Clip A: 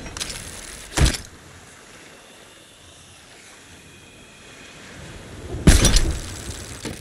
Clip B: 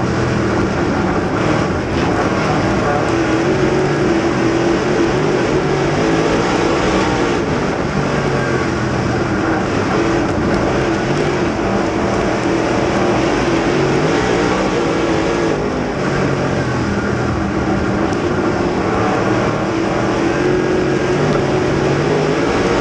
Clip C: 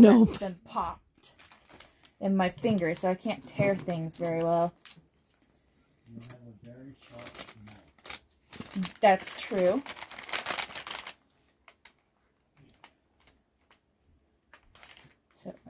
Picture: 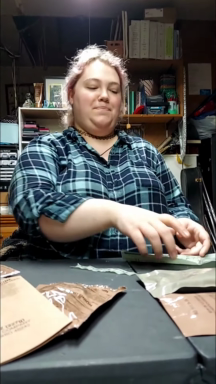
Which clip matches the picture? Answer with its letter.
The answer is C